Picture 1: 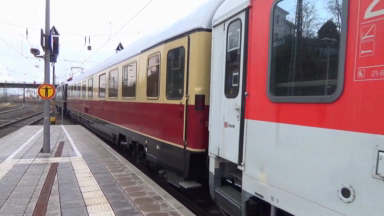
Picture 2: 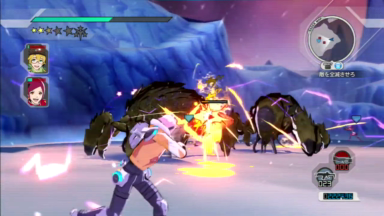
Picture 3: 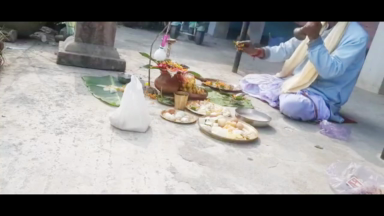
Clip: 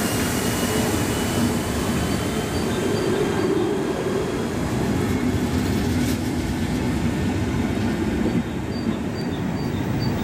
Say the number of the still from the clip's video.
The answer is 1